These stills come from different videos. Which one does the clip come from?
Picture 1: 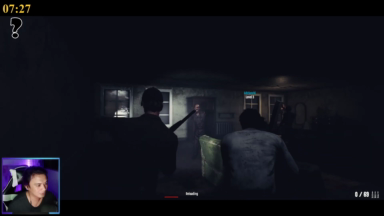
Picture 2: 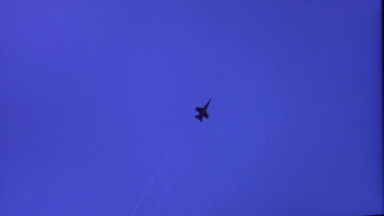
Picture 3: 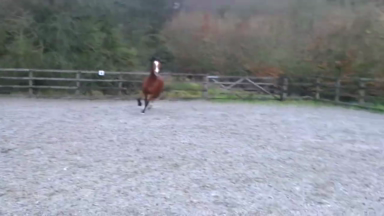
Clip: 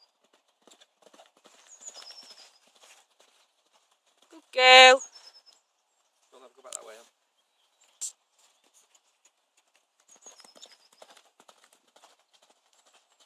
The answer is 3